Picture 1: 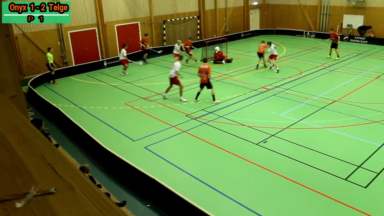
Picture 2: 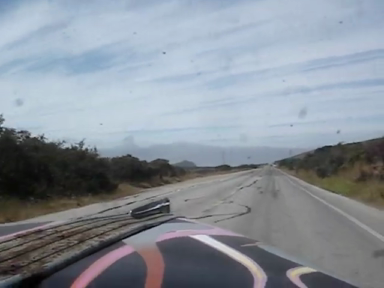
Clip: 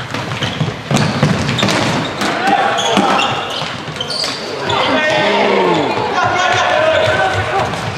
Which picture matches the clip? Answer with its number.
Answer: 1